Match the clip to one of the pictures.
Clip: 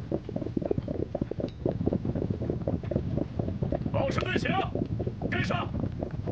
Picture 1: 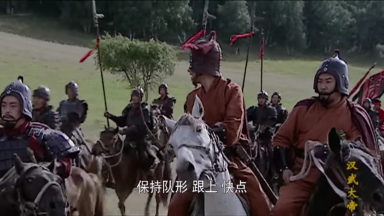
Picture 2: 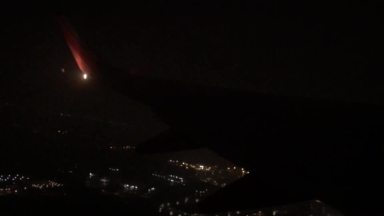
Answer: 1